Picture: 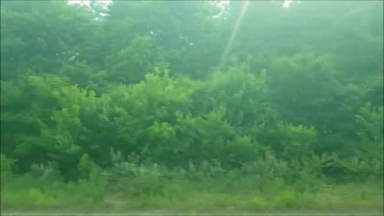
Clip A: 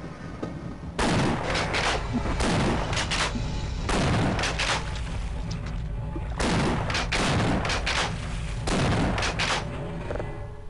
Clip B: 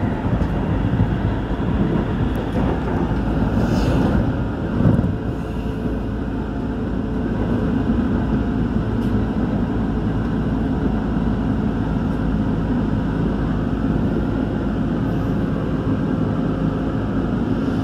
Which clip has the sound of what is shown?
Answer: B